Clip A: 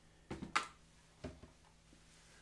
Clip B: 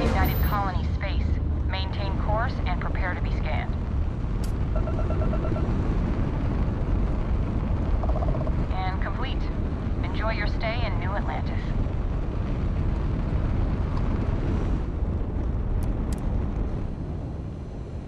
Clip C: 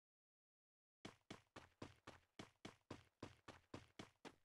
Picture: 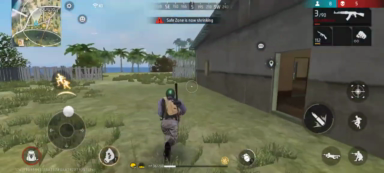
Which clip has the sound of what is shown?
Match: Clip C